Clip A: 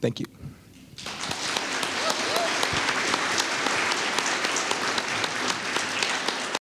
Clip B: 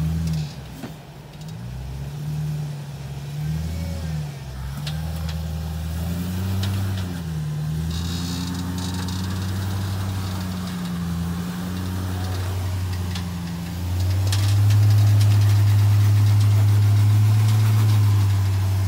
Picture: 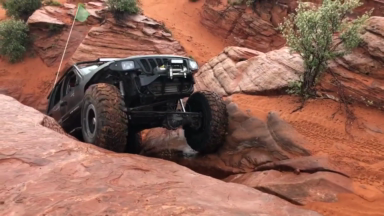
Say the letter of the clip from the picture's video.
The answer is B